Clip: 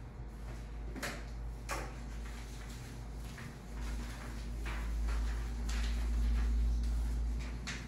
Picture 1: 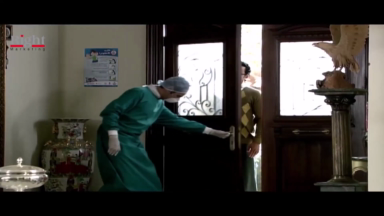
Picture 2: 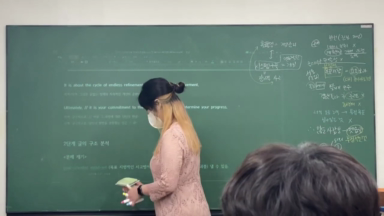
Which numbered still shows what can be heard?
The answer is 2